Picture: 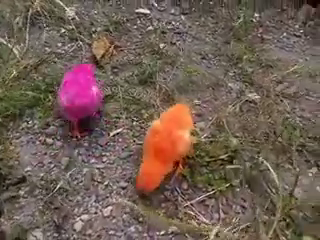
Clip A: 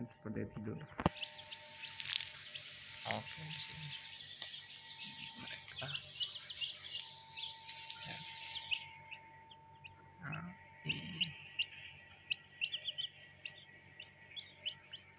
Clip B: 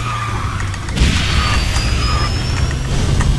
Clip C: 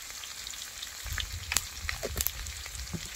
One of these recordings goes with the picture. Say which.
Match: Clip A